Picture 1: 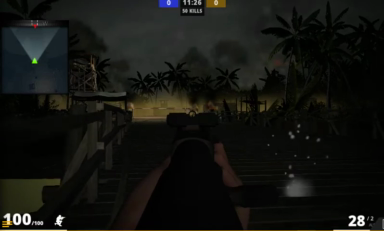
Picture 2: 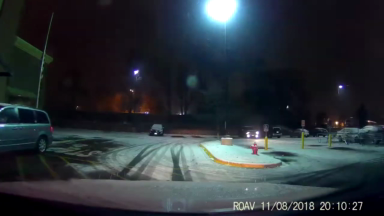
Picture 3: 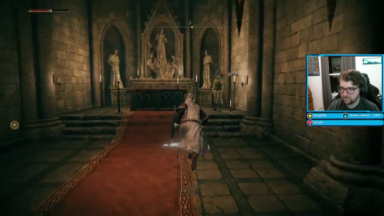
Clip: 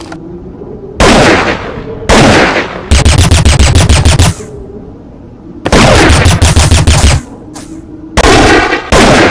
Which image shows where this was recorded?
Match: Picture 1